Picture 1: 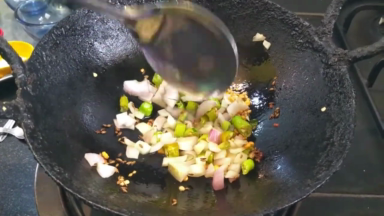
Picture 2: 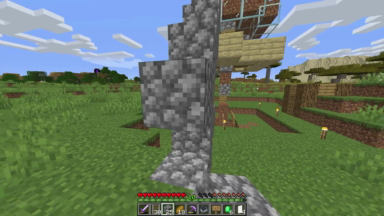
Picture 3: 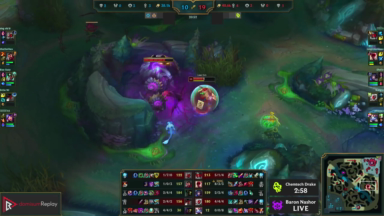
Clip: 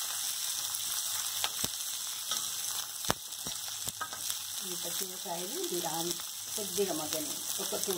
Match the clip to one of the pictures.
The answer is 1